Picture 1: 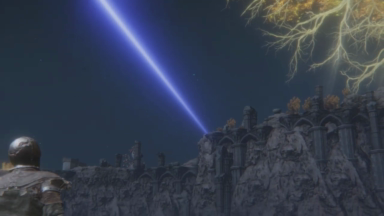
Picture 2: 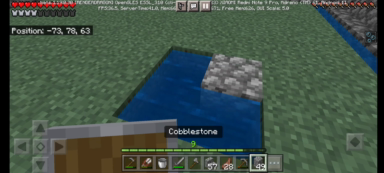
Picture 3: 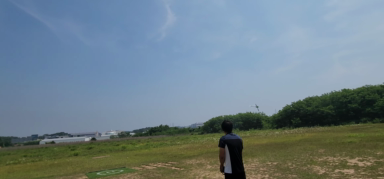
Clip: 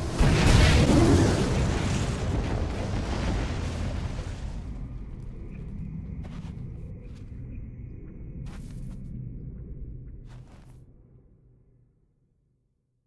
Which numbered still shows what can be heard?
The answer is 1